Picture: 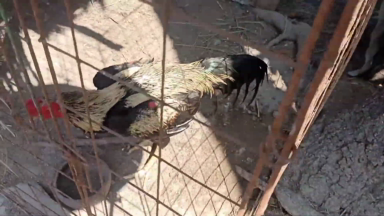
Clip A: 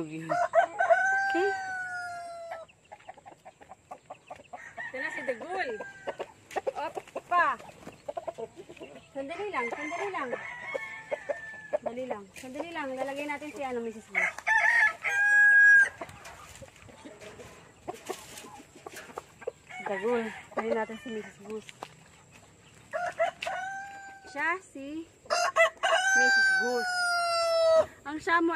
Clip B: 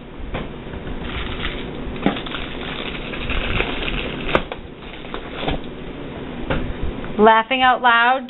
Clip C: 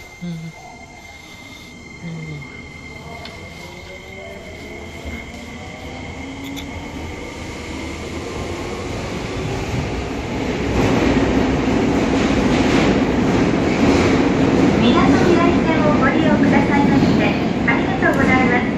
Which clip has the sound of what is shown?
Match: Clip A